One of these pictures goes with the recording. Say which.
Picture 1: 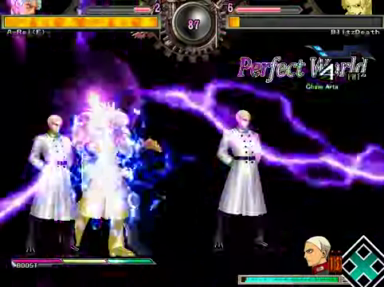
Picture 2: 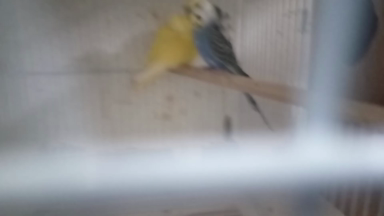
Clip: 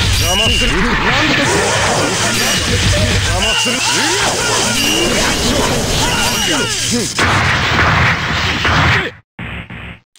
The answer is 1